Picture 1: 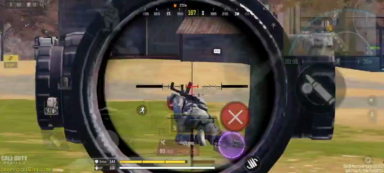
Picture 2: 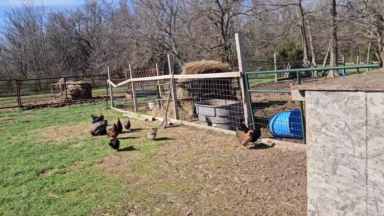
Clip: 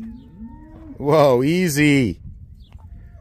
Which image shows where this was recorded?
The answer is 2